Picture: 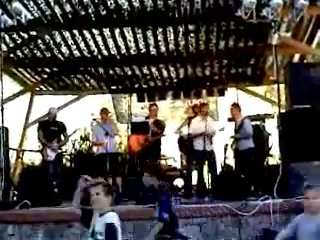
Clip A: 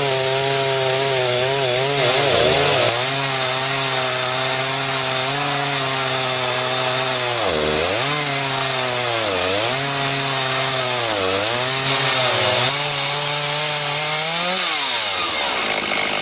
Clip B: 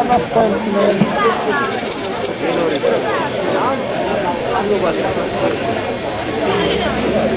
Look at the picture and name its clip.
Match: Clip B